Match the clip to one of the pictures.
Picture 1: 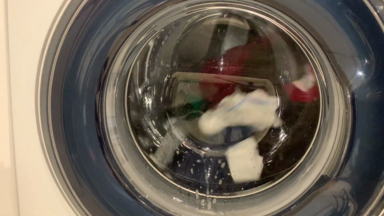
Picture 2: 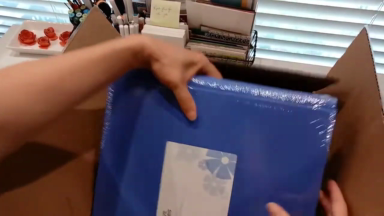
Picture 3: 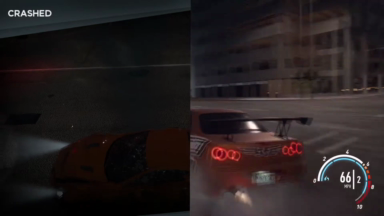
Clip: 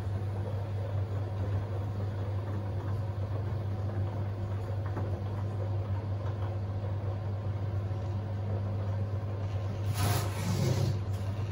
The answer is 1